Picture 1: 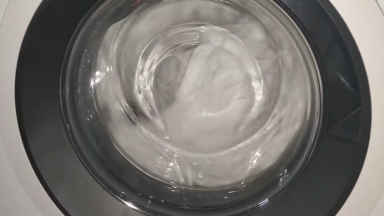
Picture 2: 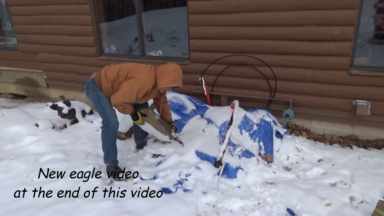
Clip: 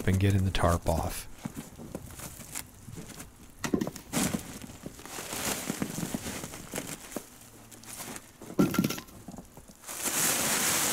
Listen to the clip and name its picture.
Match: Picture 2